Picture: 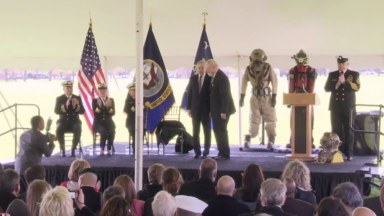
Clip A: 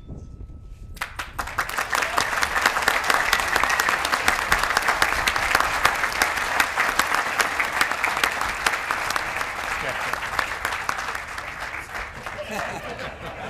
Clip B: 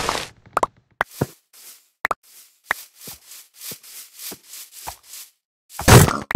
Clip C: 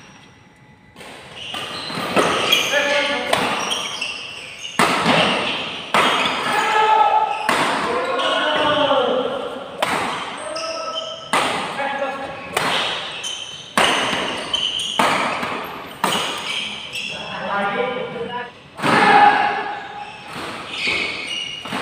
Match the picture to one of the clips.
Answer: A